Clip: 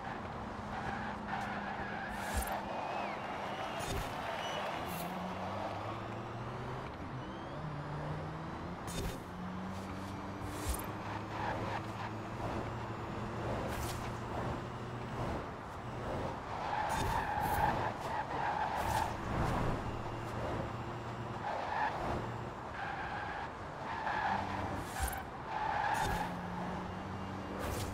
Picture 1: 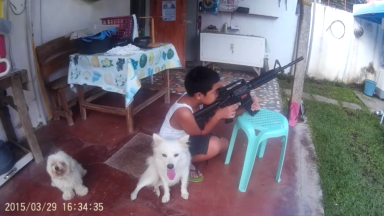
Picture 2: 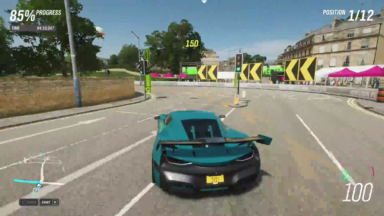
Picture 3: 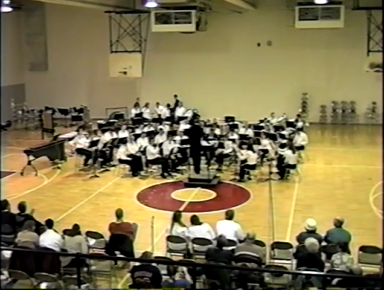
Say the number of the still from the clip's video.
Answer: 2